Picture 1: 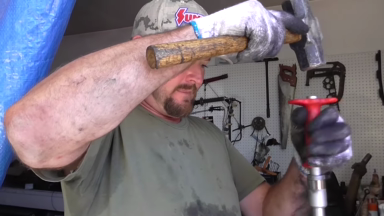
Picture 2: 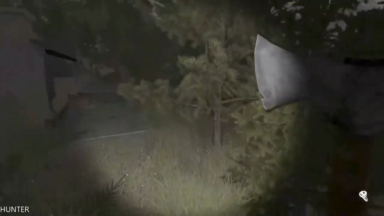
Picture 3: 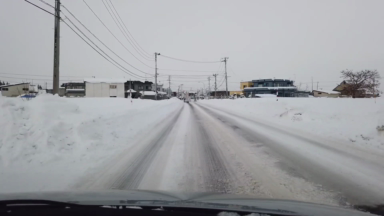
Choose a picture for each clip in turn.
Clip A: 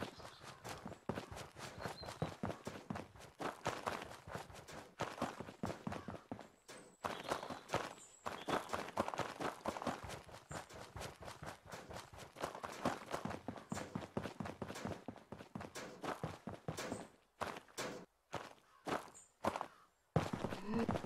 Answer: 2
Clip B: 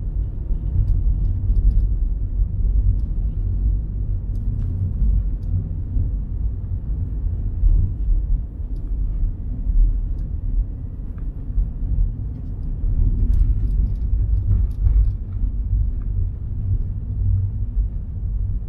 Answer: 3